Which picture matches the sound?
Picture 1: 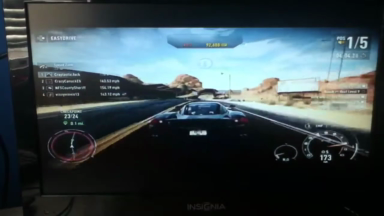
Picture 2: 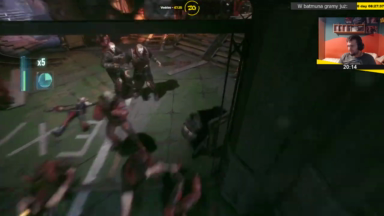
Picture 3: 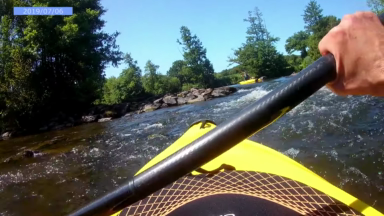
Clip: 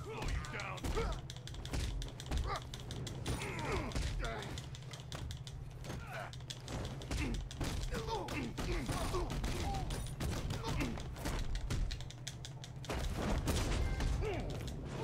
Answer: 2